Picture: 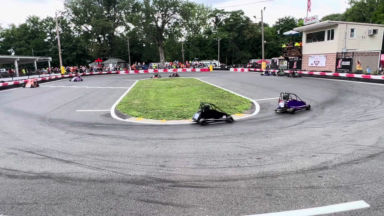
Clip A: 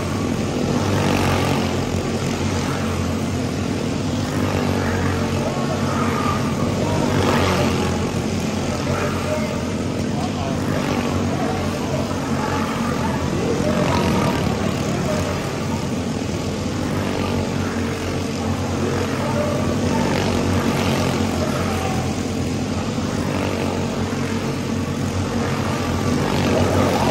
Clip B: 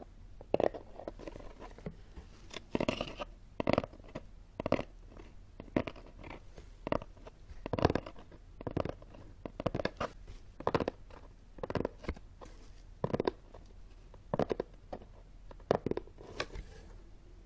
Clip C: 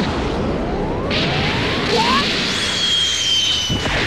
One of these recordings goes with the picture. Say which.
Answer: A